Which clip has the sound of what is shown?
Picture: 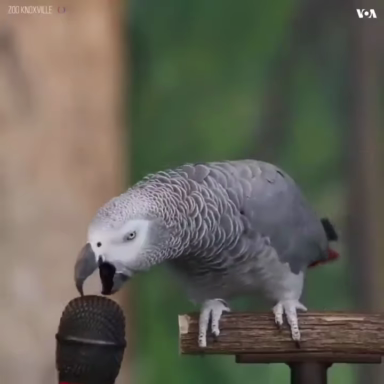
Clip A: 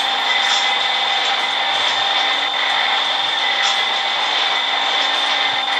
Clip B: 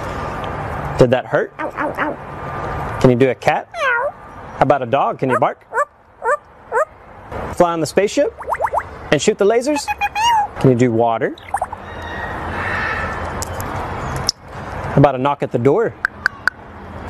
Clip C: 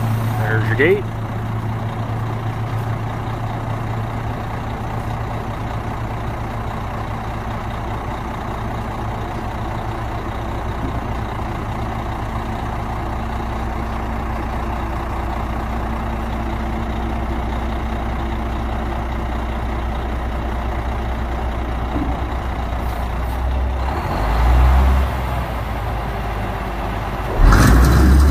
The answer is B